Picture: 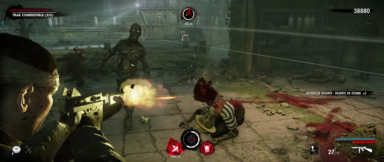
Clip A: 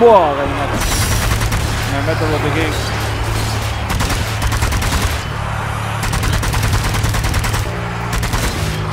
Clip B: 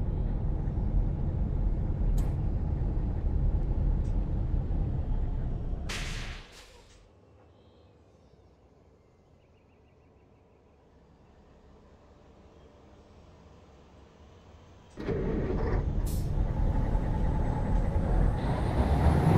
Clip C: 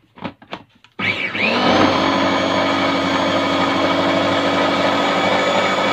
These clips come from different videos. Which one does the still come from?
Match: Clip A